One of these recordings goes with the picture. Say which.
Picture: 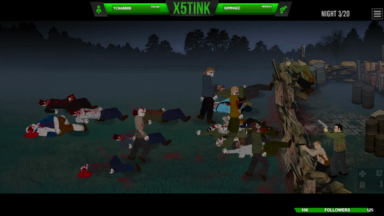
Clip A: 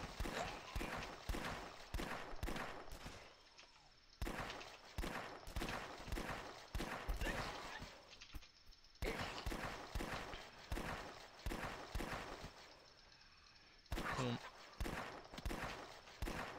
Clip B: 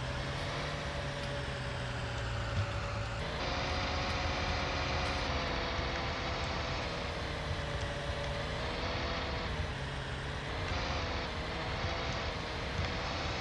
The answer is A